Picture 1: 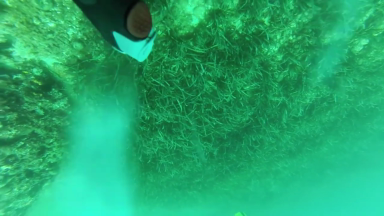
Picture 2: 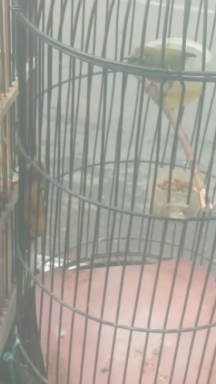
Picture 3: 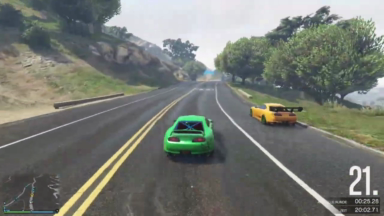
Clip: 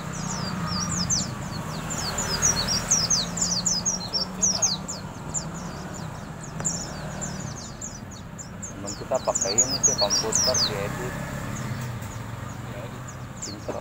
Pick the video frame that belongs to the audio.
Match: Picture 2